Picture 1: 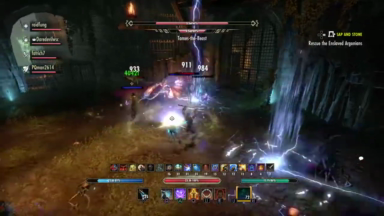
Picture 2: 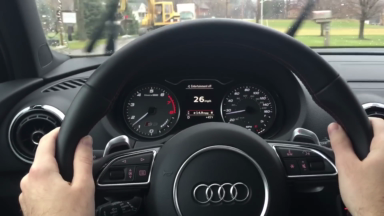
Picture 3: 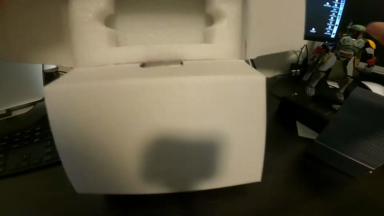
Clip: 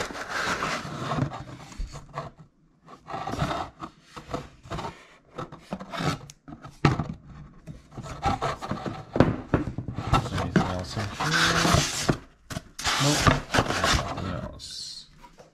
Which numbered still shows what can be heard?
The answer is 3